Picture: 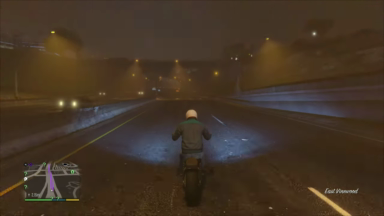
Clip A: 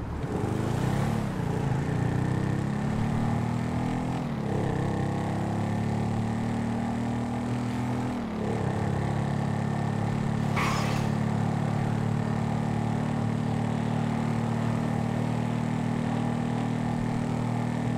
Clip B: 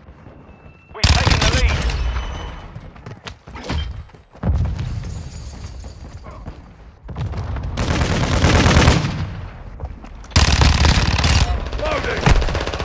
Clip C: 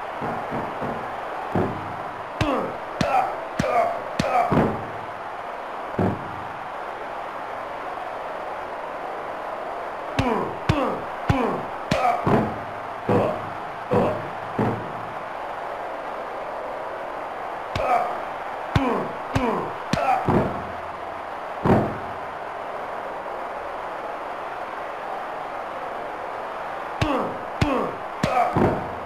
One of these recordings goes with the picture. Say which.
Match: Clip A